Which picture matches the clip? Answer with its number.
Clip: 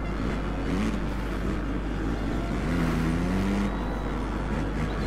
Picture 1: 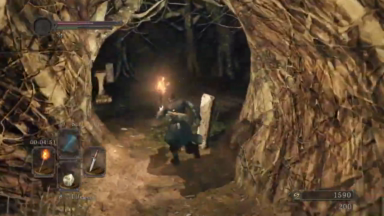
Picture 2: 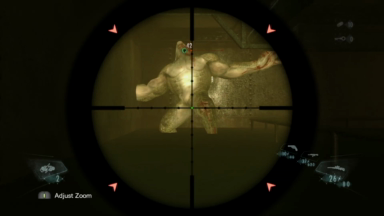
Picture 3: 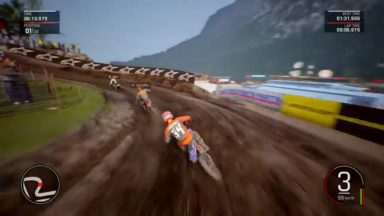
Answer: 3